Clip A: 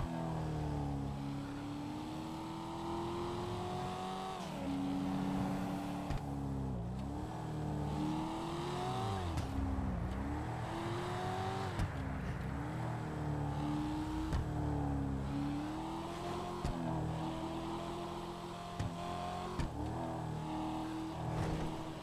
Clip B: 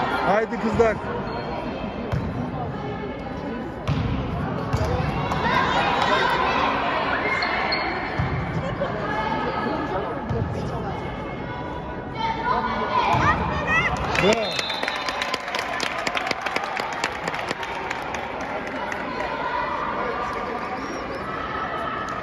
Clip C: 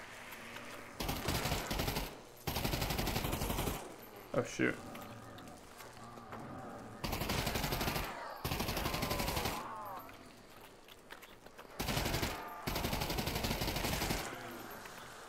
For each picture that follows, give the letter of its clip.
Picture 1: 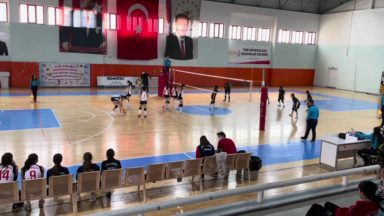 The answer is B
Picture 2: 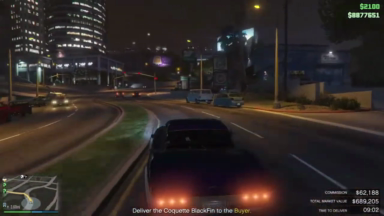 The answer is A